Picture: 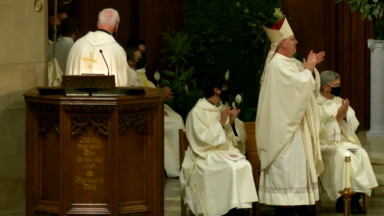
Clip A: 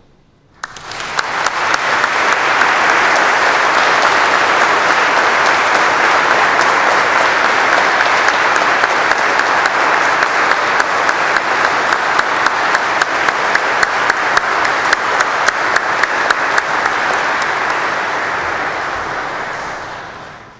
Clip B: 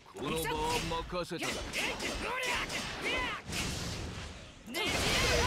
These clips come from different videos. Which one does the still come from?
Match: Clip A